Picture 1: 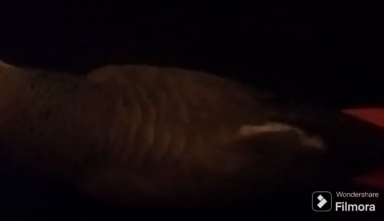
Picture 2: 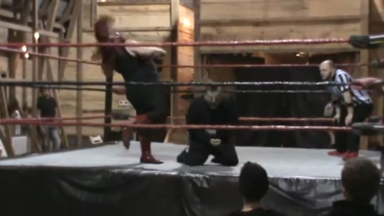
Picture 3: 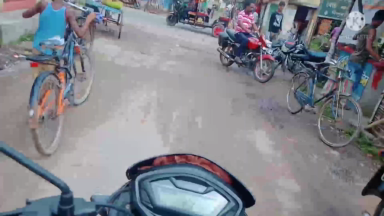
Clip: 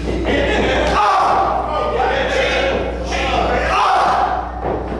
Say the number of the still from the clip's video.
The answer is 2